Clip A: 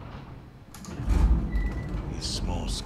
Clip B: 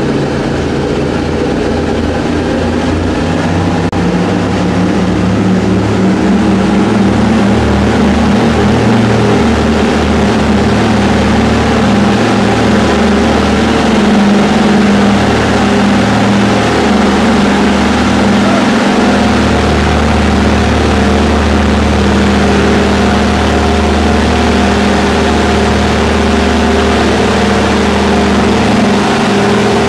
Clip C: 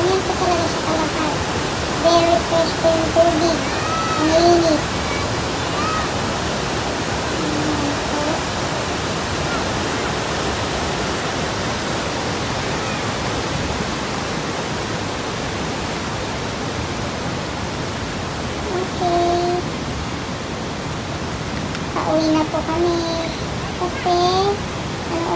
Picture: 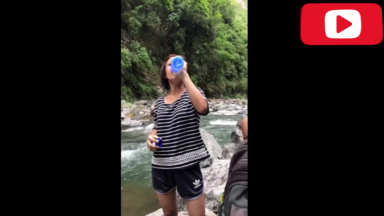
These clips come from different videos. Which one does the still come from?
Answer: C